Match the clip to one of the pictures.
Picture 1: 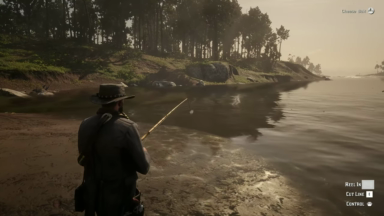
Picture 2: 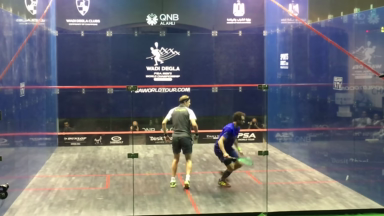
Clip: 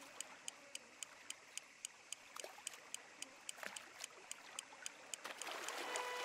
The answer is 1